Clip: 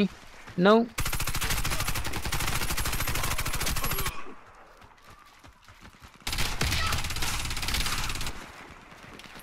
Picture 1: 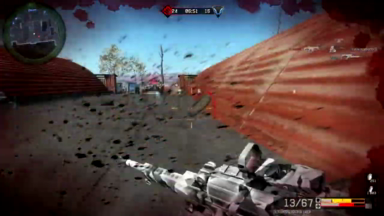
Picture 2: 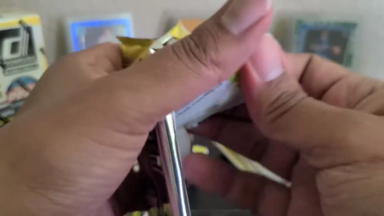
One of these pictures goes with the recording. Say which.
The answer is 1